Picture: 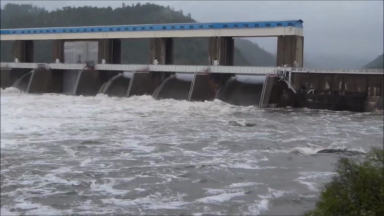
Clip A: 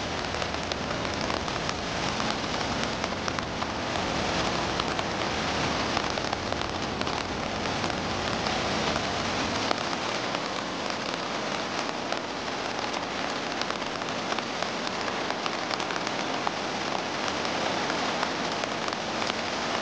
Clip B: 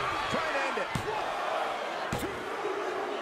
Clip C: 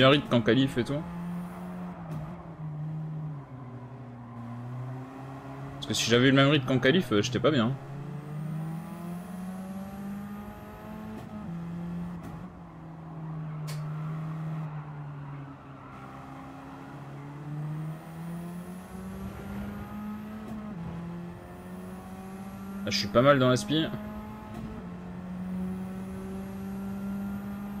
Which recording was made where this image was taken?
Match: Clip A